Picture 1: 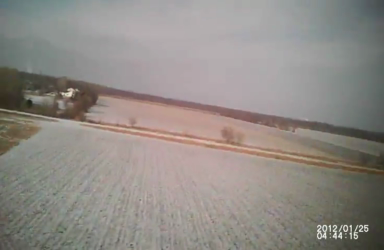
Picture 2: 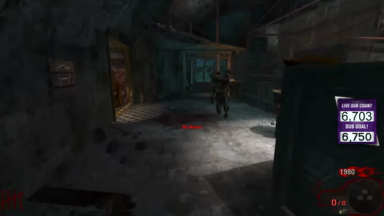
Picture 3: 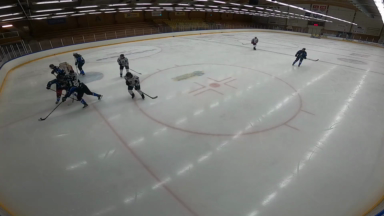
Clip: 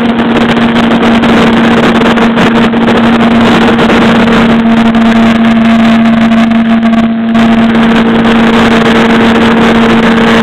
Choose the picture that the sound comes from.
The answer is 1